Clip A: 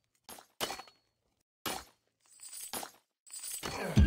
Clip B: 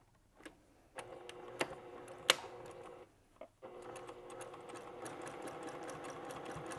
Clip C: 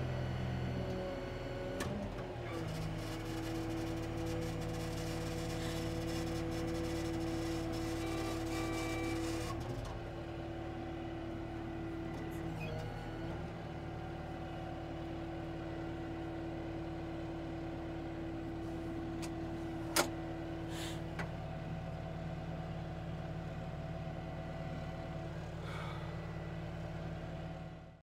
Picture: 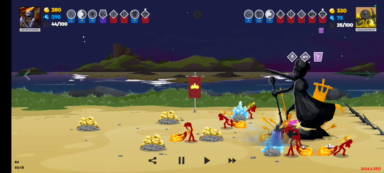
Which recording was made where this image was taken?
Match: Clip A